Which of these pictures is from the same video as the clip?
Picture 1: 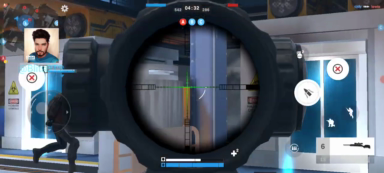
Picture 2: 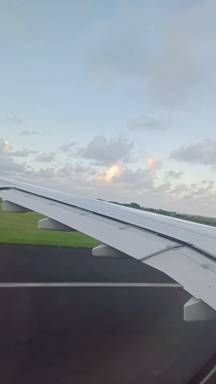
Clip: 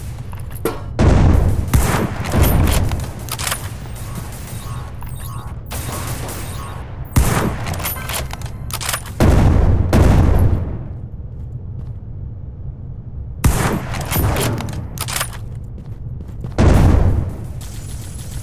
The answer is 1